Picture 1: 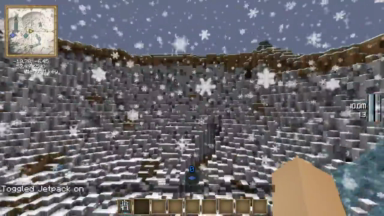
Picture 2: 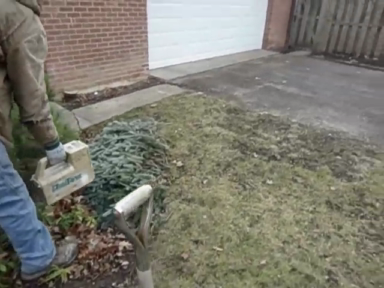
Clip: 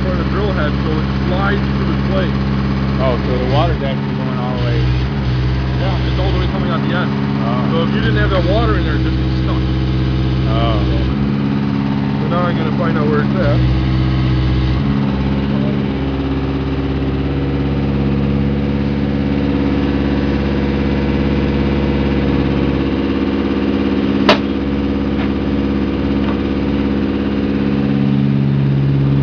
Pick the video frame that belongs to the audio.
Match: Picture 2